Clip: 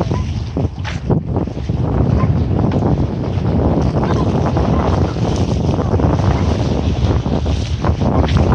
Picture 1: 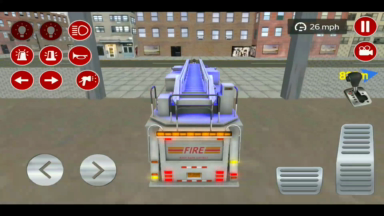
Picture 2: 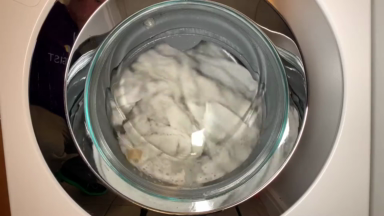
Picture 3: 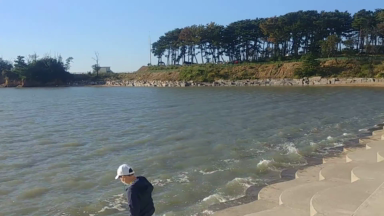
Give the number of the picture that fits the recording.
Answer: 3